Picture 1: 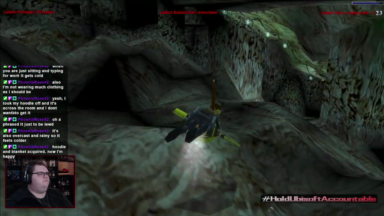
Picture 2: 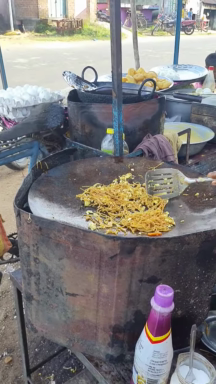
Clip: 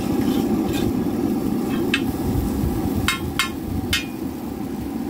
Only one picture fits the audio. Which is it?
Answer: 2